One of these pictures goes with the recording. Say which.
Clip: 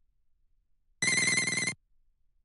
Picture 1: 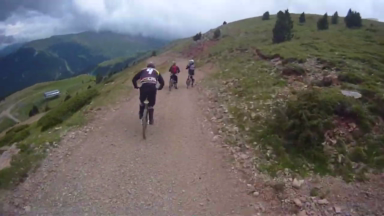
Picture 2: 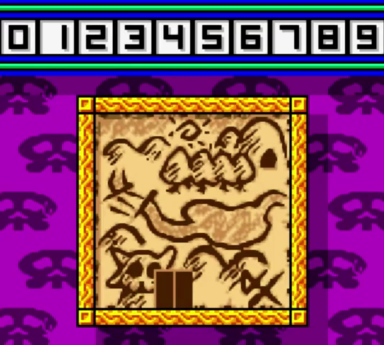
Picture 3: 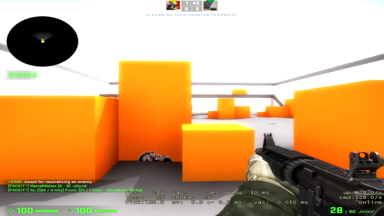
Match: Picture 2